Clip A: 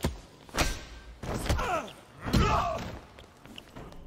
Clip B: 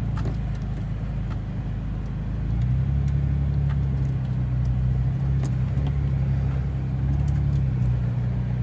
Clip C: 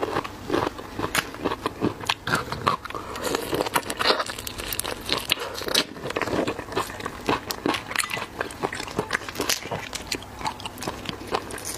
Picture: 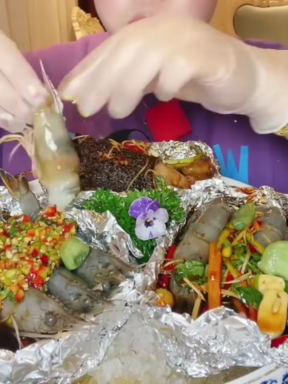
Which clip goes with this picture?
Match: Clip C